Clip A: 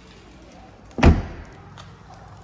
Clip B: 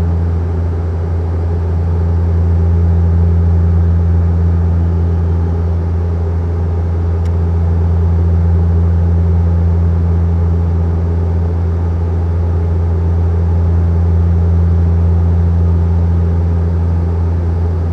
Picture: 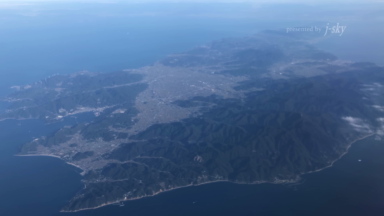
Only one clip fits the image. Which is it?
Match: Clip B